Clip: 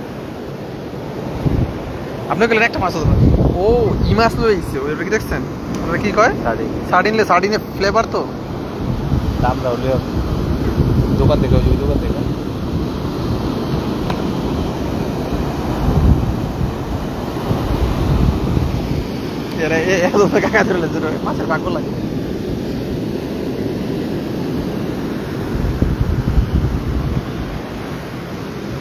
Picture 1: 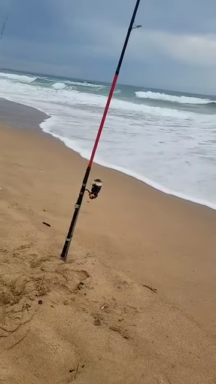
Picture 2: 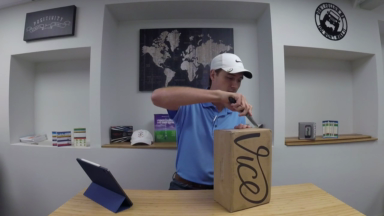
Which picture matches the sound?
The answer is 1